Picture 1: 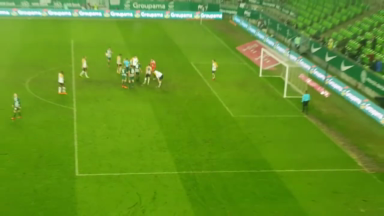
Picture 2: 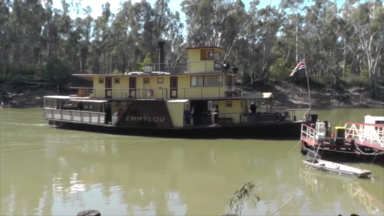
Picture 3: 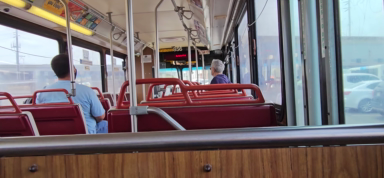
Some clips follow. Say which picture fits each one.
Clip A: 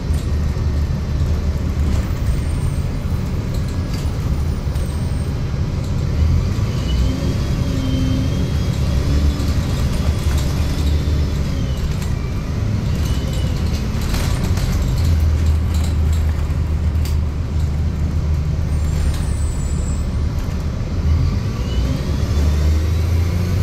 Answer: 3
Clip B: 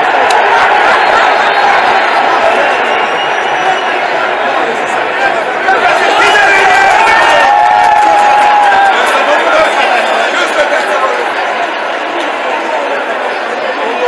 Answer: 1